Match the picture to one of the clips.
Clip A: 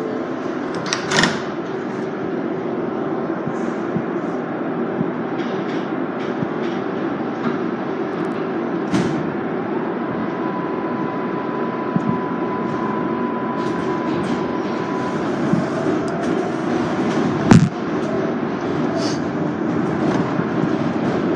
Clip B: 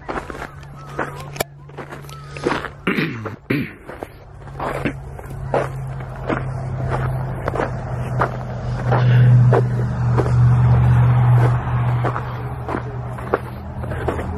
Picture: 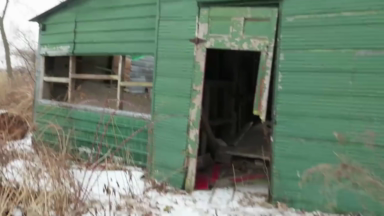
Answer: B